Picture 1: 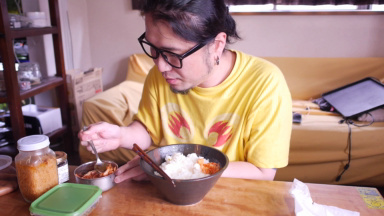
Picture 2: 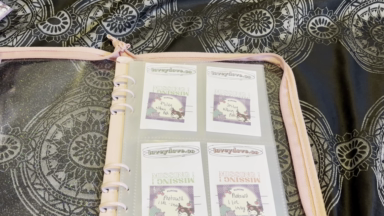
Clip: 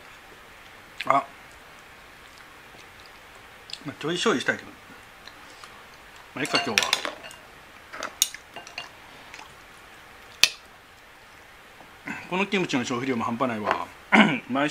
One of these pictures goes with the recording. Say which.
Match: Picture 1